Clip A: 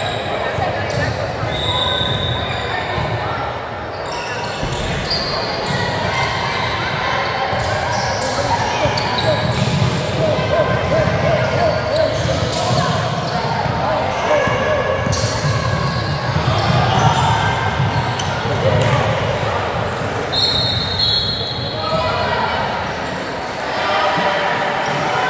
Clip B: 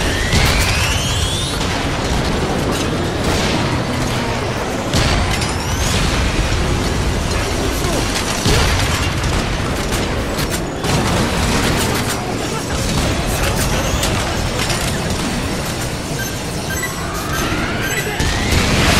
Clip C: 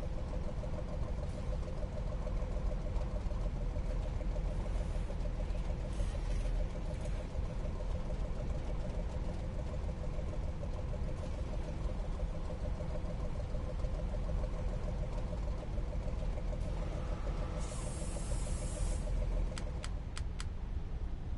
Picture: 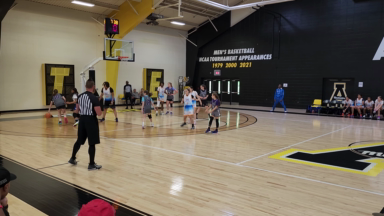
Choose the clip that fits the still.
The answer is A